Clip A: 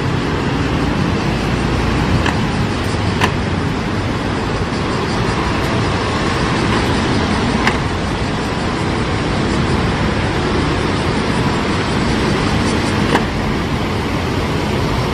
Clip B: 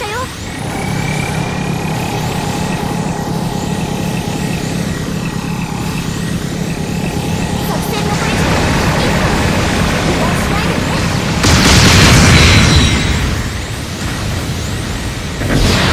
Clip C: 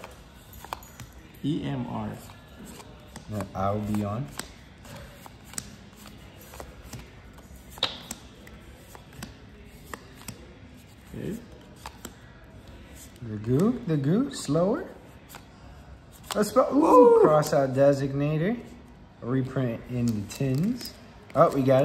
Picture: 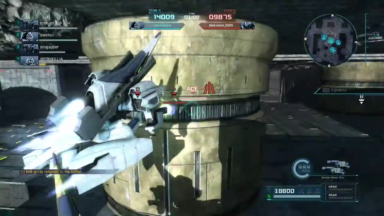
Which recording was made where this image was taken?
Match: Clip B